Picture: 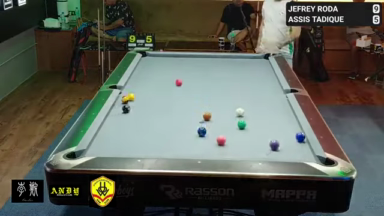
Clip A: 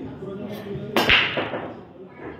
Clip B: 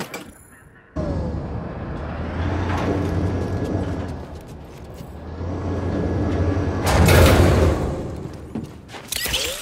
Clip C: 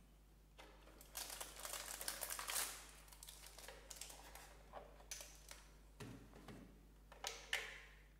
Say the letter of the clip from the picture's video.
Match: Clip A